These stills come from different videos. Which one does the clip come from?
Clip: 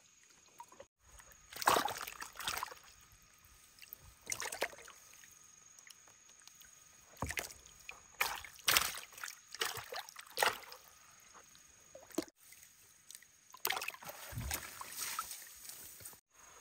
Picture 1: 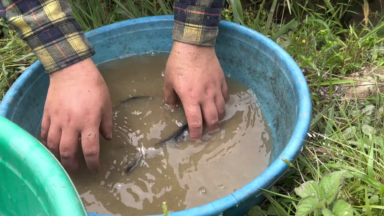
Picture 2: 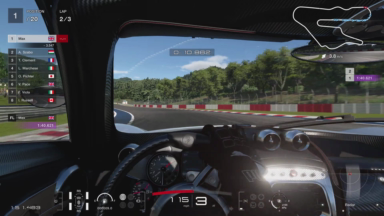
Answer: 1